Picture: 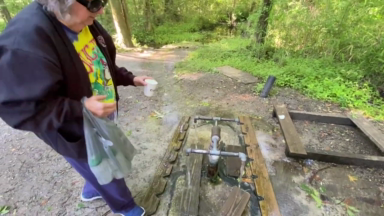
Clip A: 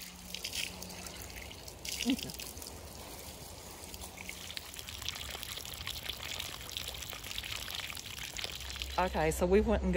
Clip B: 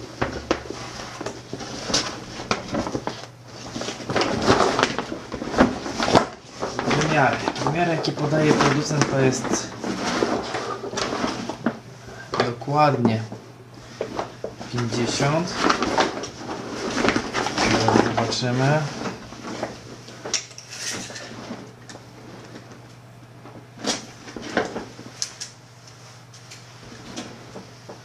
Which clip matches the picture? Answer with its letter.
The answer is A